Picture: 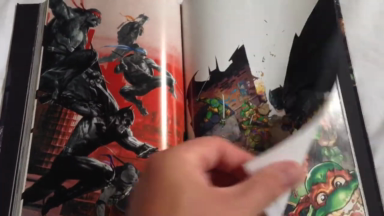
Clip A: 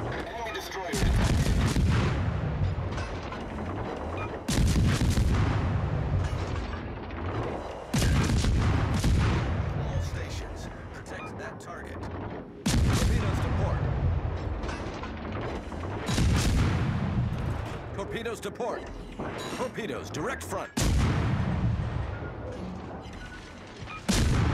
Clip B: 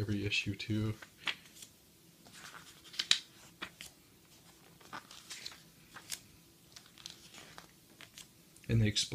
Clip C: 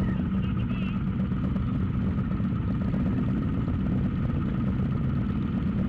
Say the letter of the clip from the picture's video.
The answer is B